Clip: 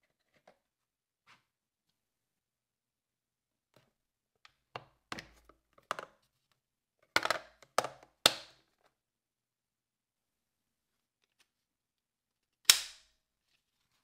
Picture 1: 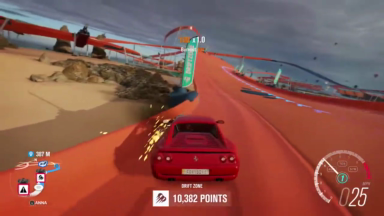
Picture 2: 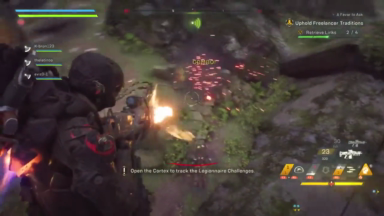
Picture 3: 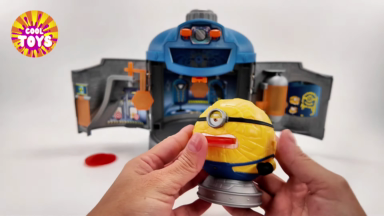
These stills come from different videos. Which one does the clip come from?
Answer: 3